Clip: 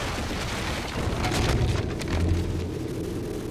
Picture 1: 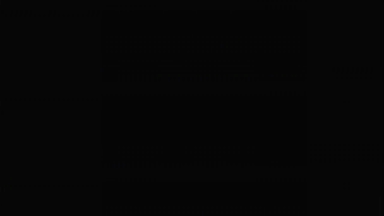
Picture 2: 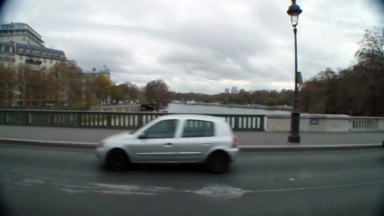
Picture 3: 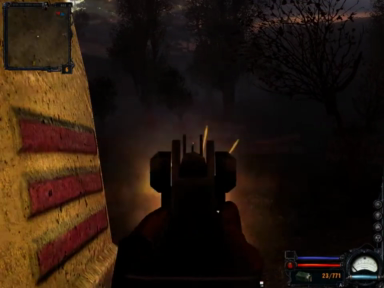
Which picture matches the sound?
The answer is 1